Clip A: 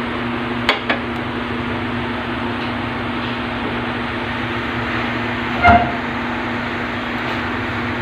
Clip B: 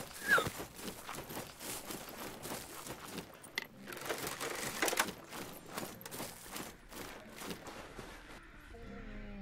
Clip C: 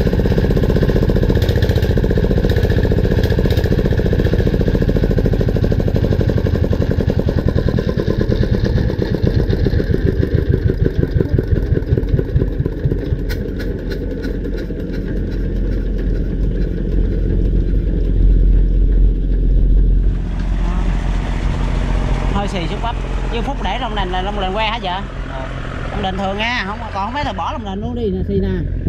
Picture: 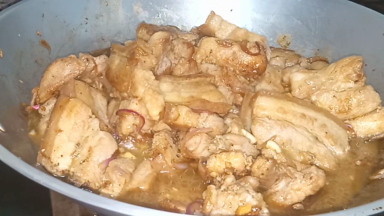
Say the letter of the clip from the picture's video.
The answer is A